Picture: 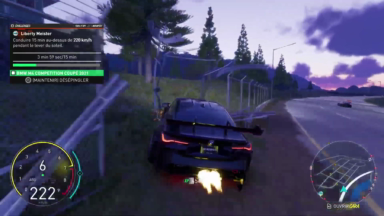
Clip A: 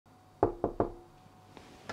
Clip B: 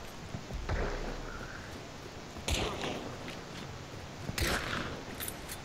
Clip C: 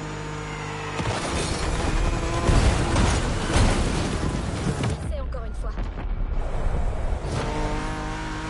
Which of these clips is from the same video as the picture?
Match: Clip C